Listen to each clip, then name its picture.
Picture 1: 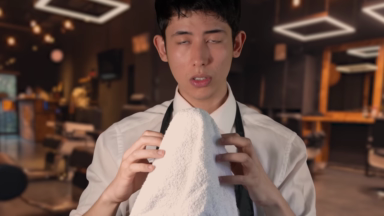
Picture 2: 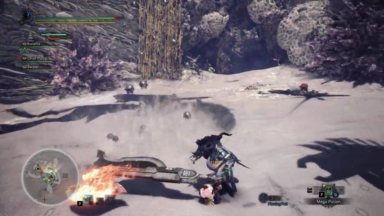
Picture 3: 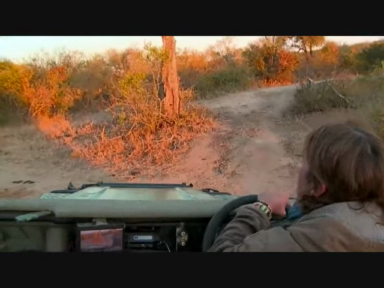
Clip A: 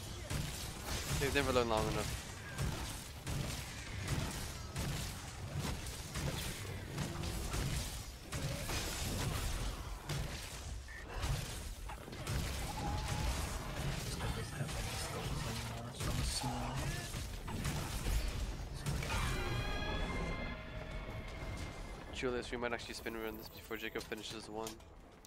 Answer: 2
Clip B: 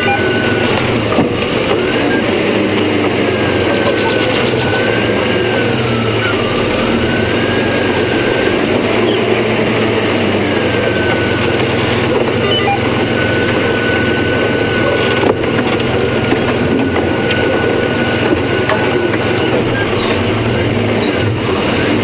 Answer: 3